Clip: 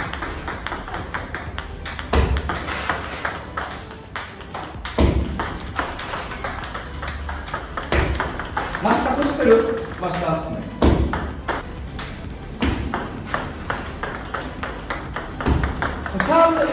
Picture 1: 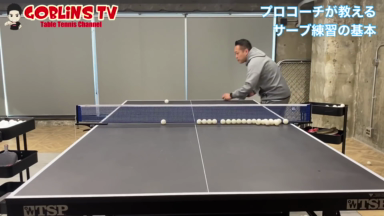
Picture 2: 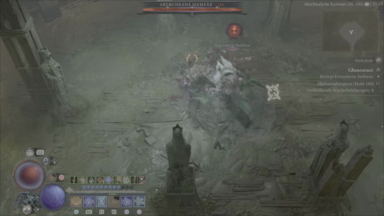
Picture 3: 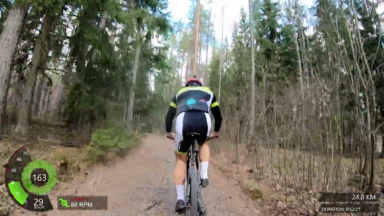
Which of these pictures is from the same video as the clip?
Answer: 1